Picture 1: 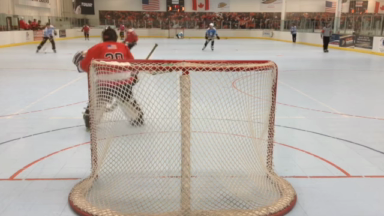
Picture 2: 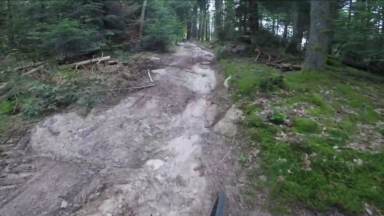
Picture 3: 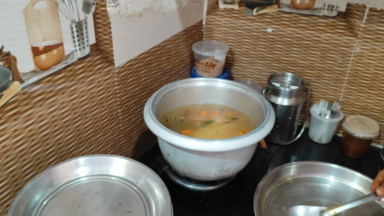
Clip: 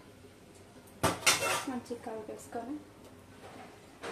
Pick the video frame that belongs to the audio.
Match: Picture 3